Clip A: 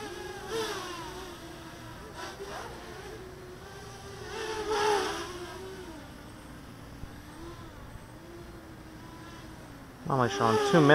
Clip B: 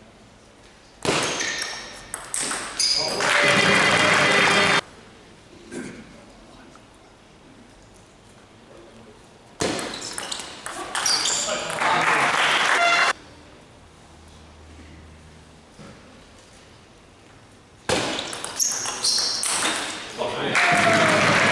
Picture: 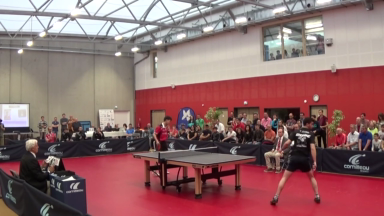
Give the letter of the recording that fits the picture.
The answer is B